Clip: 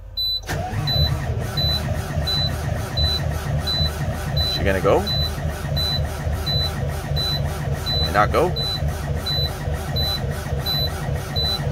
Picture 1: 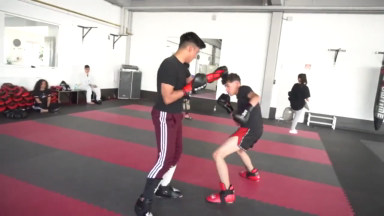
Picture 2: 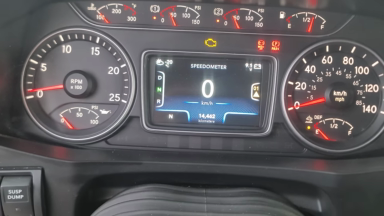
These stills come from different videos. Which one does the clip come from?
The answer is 2